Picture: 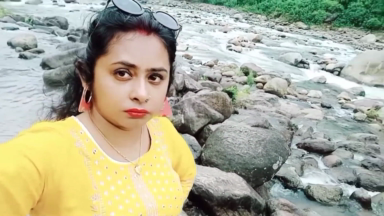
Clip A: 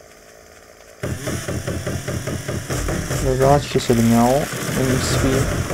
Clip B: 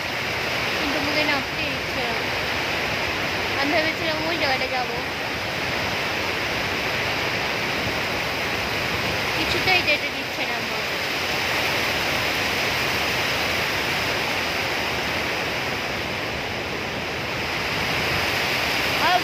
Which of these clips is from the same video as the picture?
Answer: B